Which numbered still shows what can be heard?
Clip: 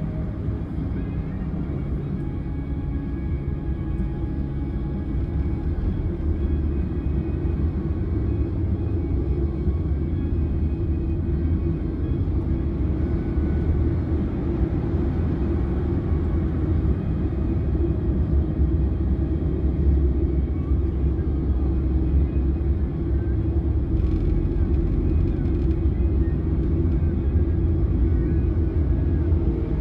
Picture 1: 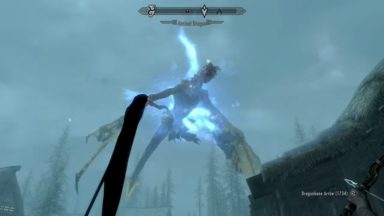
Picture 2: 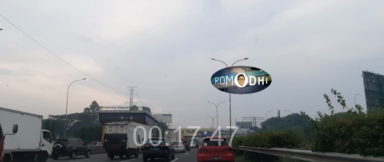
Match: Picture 2